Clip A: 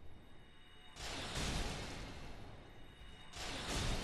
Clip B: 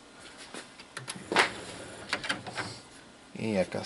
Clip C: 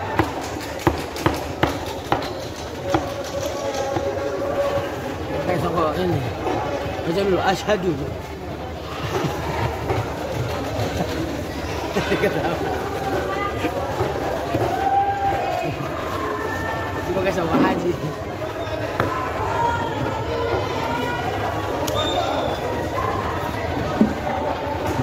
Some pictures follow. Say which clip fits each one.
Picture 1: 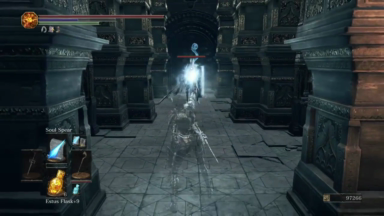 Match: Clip A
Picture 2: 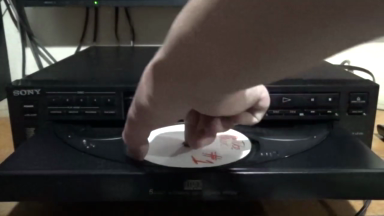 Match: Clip B